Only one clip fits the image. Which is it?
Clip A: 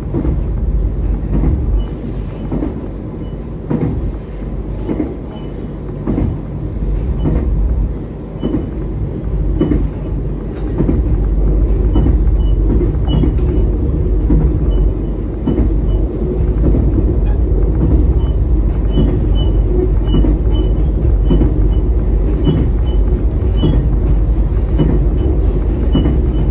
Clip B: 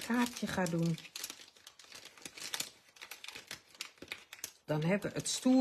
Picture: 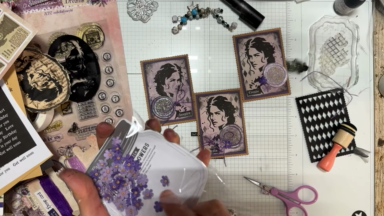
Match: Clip B